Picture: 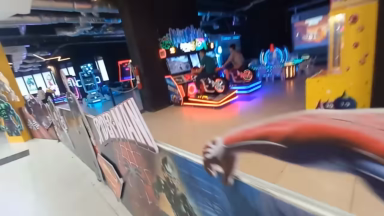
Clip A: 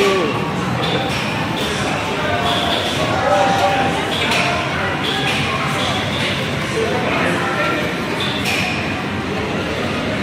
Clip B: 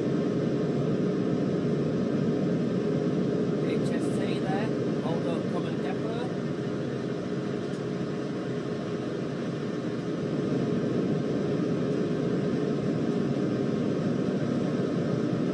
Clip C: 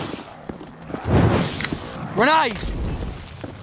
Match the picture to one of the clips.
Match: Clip A